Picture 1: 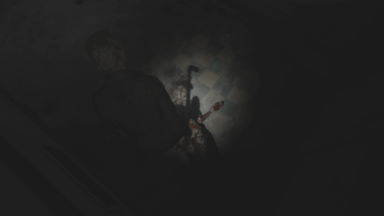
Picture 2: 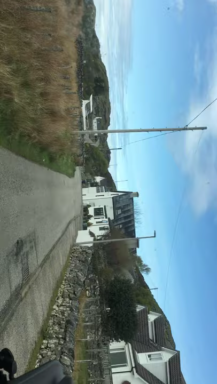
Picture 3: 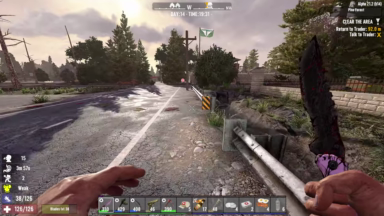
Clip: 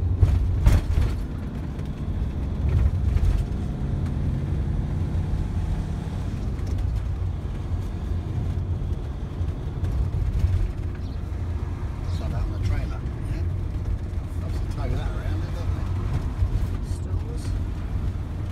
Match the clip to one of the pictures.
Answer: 2